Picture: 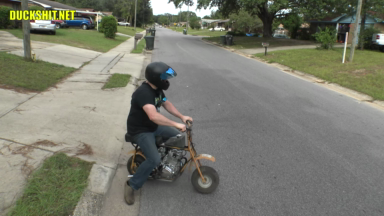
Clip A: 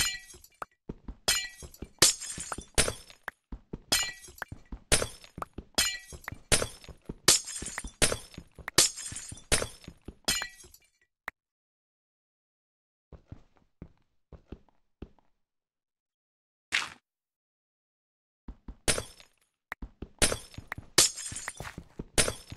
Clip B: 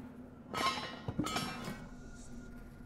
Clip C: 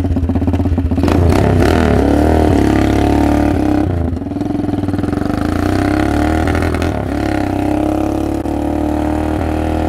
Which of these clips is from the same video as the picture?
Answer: C